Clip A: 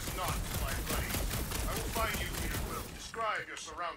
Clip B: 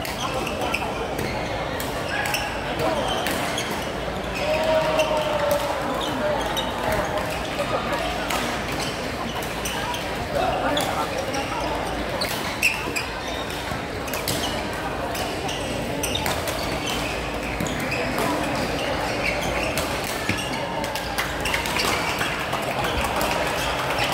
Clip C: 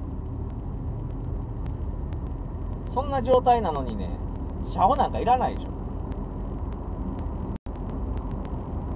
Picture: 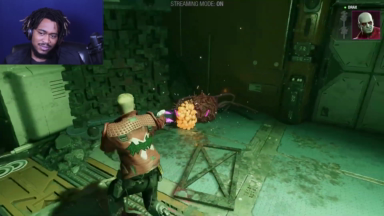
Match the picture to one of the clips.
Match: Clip A